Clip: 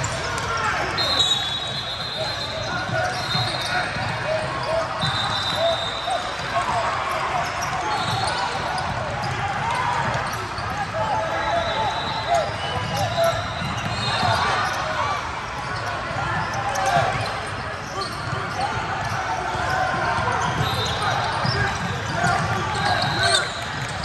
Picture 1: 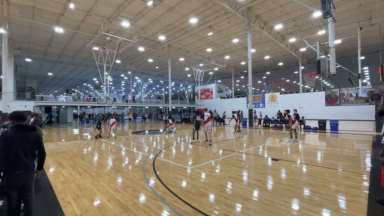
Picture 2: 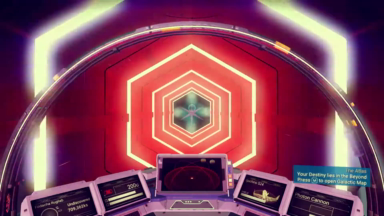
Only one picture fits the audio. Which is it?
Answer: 1